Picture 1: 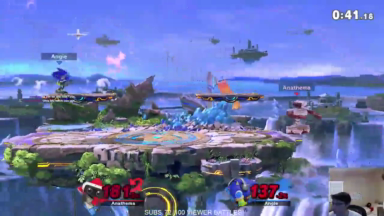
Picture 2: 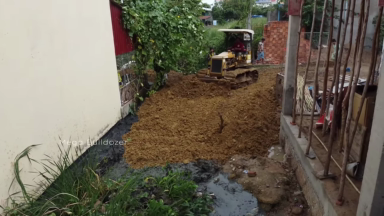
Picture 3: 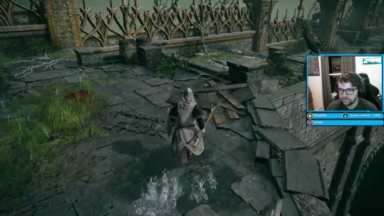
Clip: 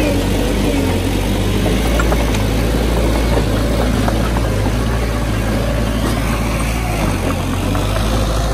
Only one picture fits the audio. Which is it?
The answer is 2